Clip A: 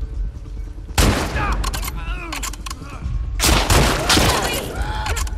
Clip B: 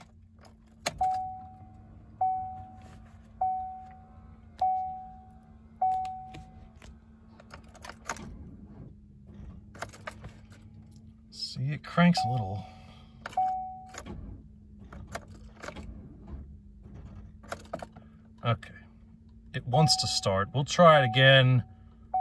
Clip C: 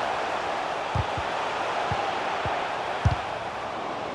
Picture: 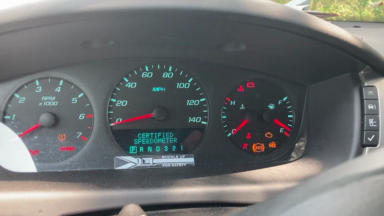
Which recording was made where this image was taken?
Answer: B